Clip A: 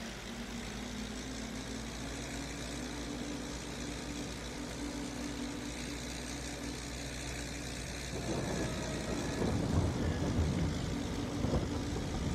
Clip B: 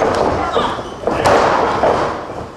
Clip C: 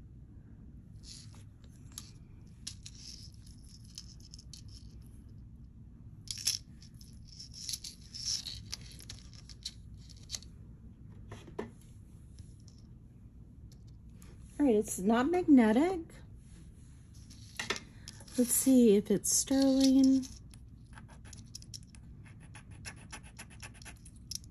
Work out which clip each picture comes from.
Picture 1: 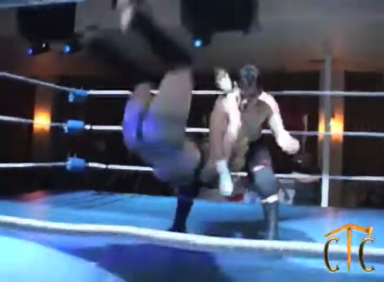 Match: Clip B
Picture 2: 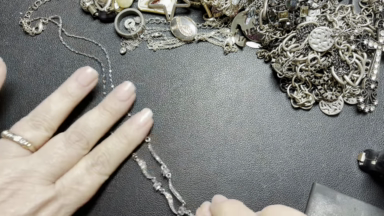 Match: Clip C